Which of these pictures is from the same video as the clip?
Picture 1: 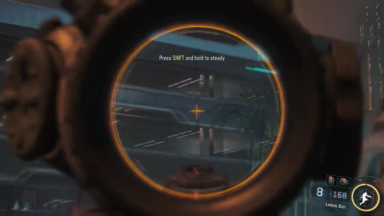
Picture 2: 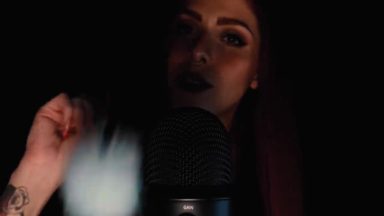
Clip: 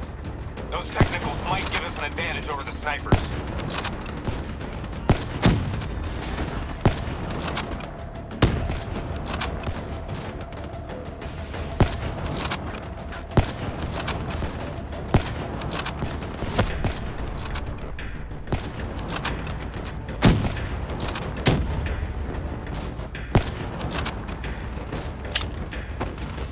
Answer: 1